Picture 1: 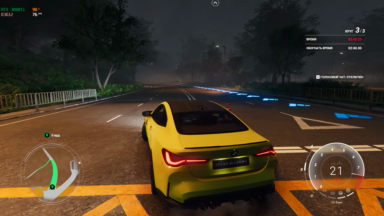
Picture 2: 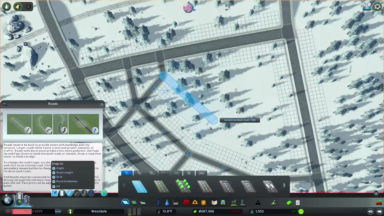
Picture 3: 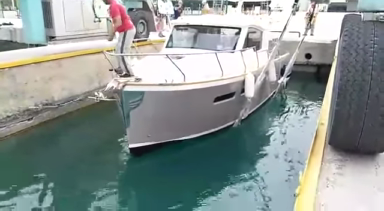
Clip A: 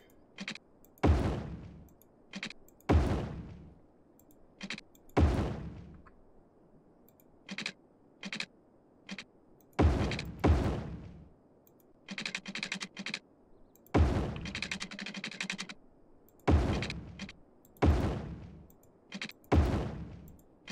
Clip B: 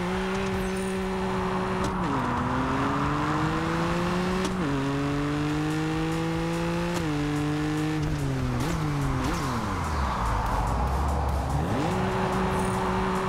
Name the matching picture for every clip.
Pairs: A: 2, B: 1